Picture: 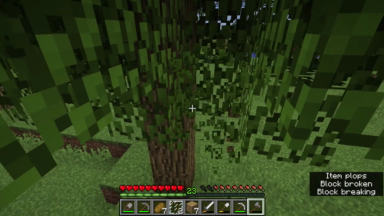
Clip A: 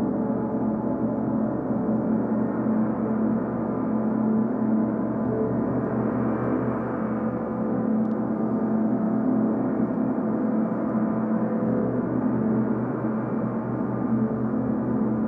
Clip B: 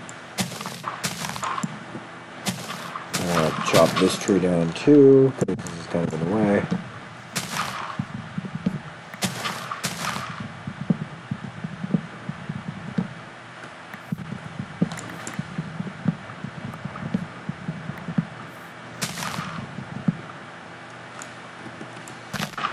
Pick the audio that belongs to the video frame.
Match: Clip B